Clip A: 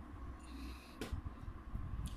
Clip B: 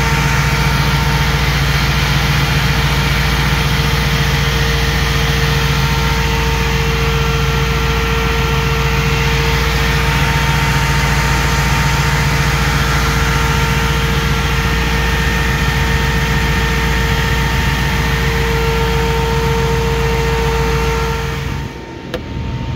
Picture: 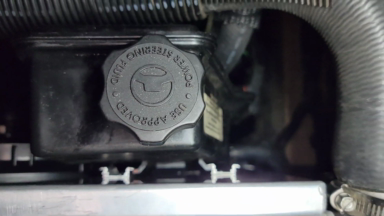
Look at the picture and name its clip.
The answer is B